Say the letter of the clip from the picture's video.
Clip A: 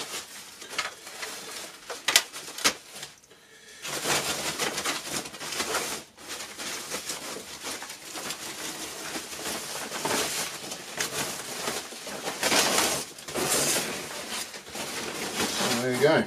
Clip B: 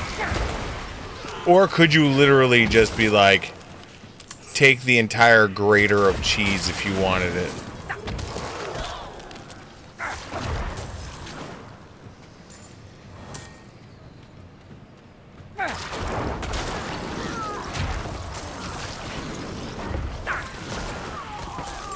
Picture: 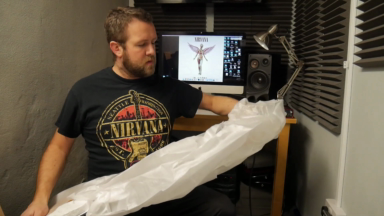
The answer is A